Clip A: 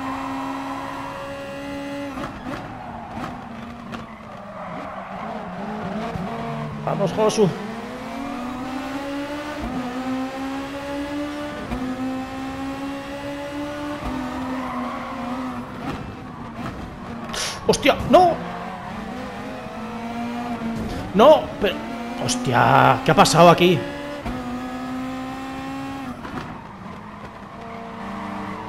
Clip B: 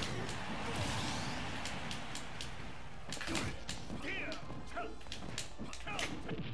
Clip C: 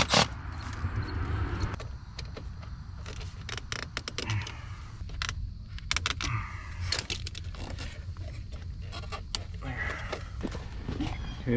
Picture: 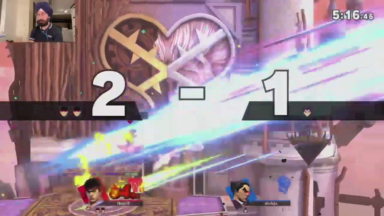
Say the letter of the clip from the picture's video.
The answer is B